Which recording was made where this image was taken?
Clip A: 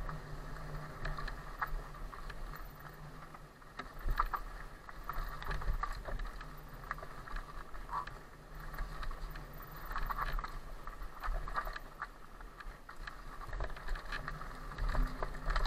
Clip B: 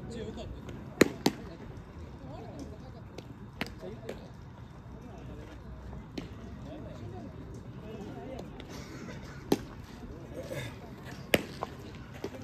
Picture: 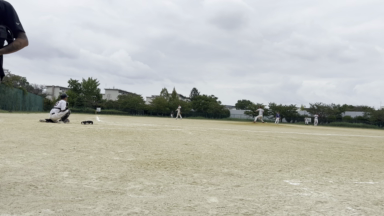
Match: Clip B